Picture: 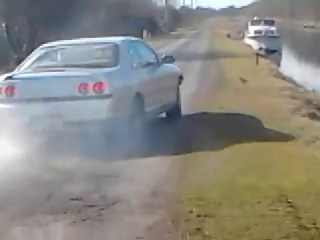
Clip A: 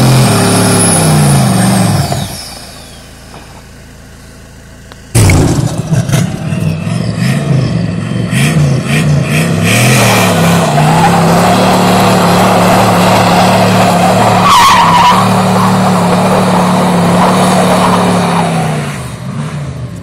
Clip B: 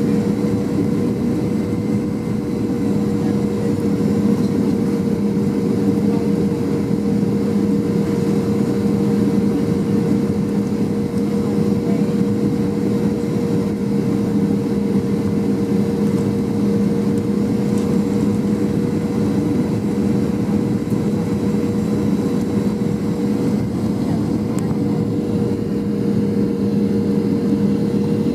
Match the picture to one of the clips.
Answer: A